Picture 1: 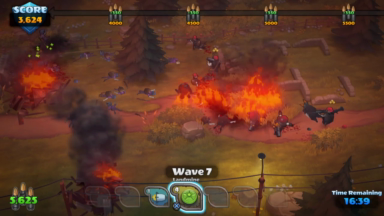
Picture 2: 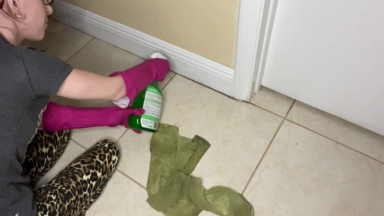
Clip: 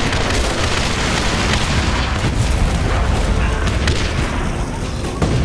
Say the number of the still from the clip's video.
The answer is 1